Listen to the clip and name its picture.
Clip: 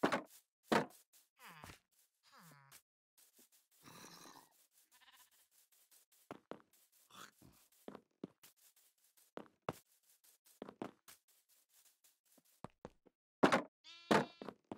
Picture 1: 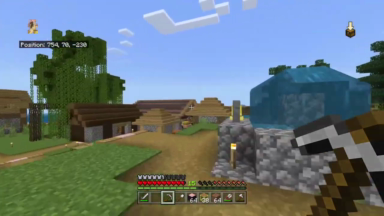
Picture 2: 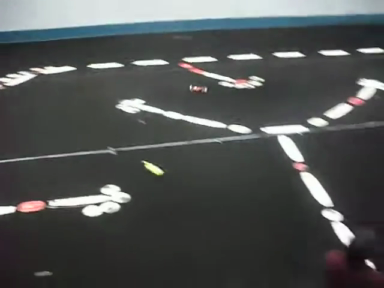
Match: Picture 1